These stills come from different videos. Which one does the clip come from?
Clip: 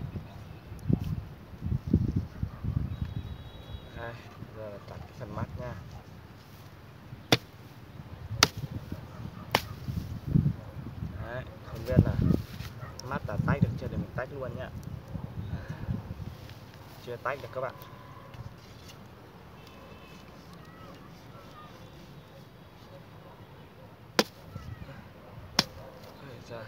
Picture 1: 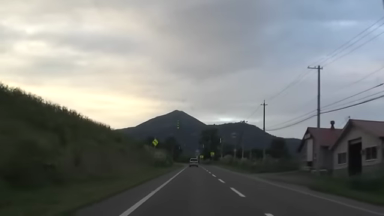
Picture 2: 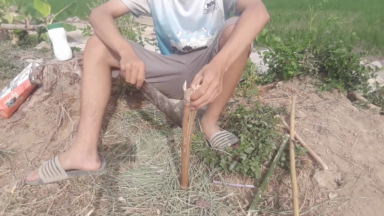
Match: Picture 2